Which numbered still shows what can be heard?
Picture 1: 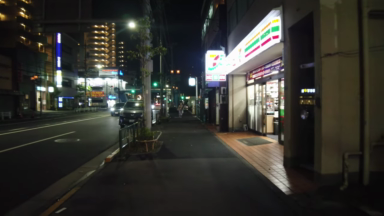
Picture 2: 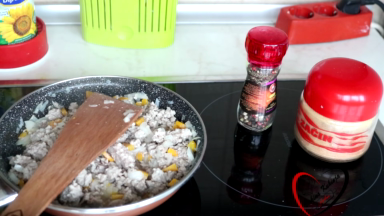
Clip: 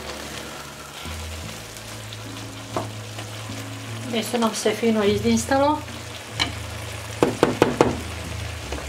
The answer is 2